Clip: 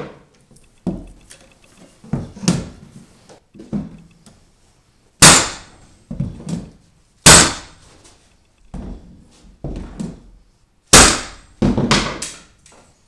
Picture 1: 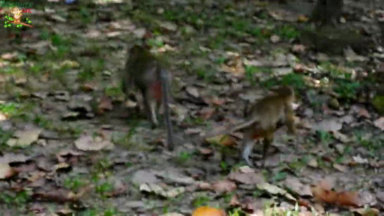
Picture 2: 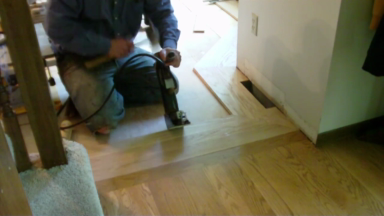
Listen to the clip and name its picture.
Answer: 2